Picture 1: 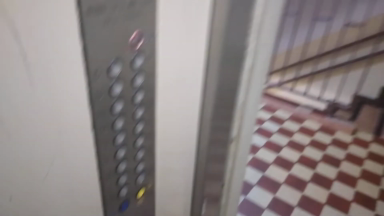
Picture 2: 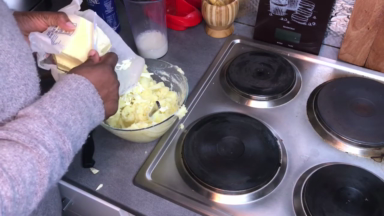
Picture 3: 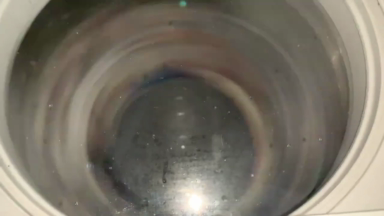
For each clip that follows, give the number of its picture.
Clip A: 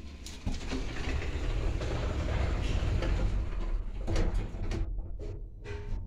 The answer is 1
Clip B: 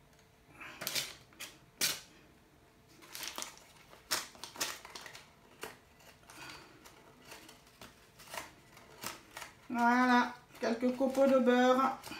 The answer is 2